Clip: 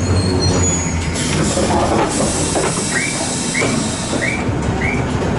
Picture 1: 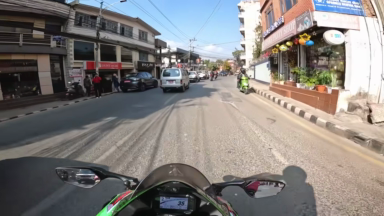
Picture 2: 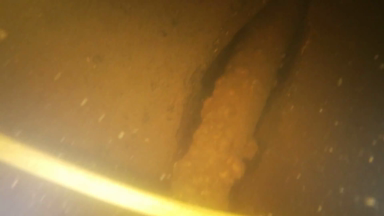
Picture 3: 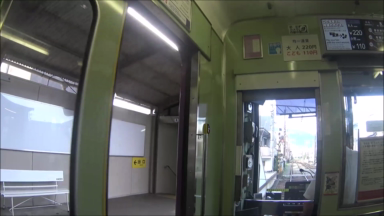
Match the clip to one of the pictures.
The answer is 3